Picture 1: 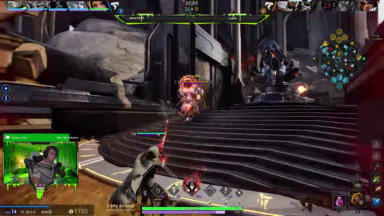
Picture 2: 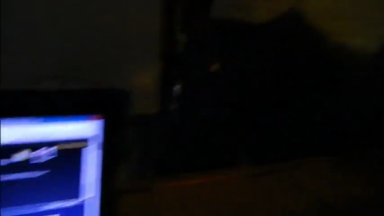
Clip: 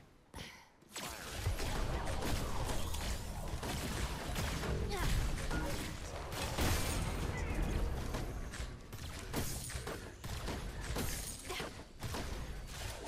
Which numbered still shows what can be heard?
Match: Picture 1